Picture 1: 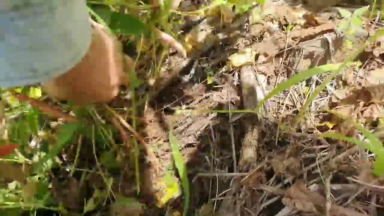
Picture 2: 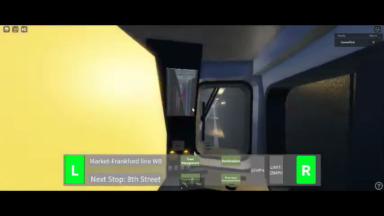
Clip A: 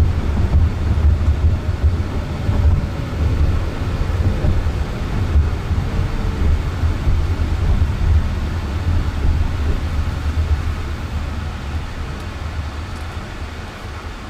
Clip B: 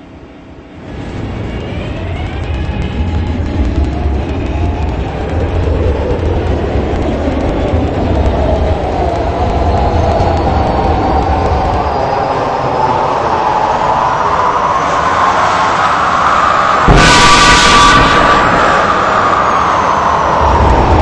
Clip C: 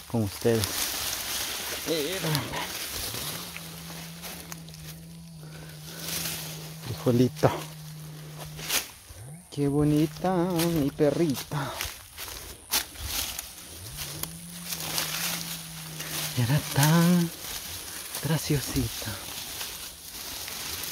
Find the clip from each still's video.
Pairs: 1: C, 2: B